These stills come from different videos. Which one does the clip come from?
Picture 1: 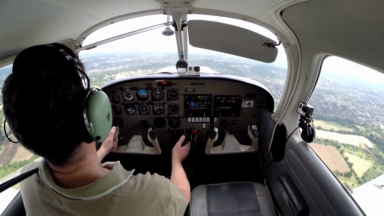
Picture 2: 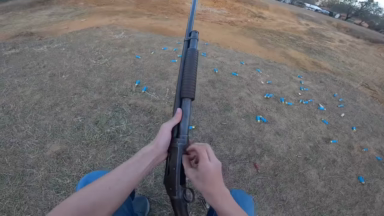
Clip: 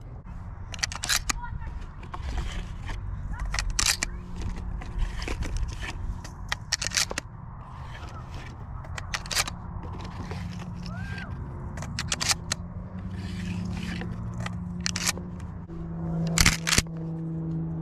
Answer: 2